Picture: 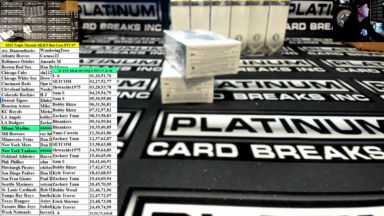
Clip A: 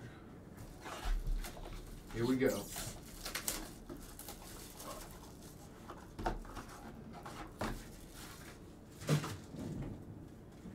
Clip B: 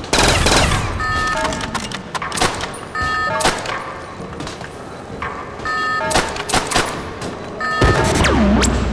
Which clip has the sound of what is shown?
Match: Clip A